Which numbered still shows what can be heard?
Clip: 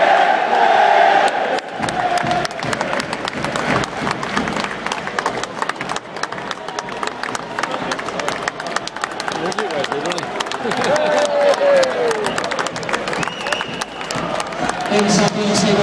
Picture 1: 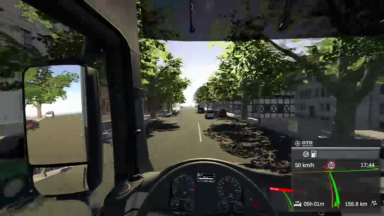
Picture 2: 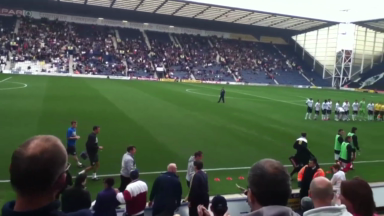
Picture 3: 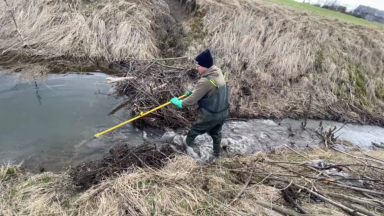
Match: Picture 2